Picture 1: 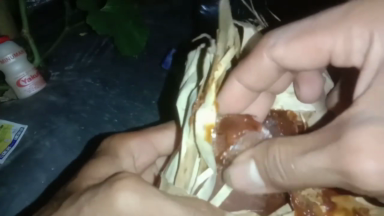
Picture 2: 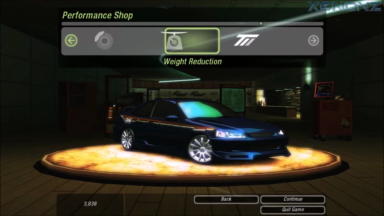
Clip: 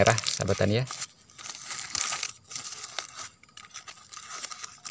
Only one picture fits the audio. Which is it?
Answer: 1